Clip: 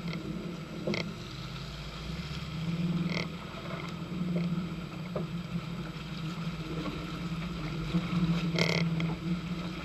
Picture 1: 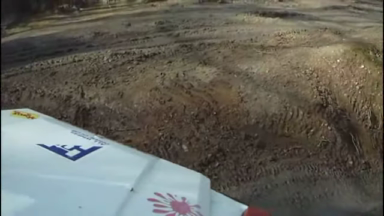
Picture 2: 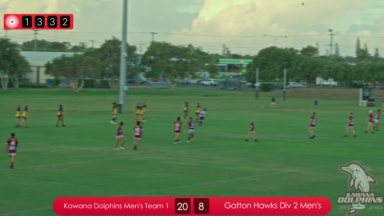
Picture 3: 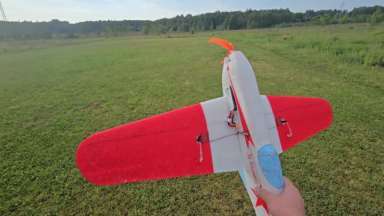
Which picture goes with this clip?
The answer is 1